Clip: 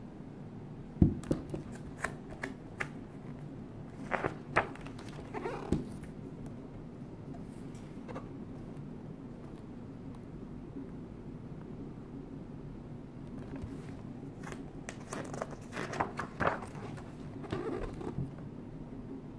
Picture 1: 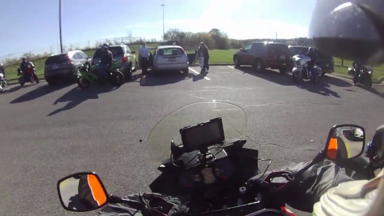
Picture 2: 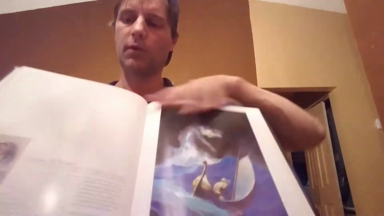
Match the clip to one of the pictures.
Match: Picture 2